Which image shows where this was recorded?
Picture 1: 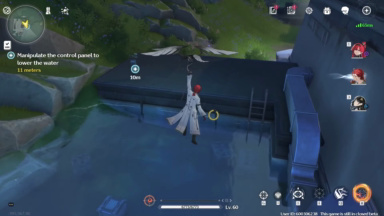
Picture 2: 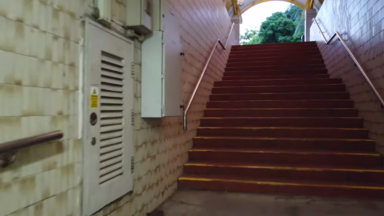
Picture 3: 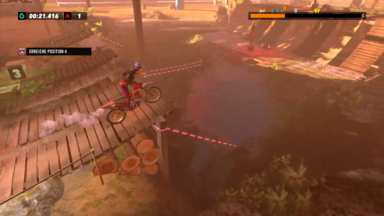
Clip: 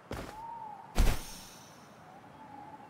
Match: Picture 1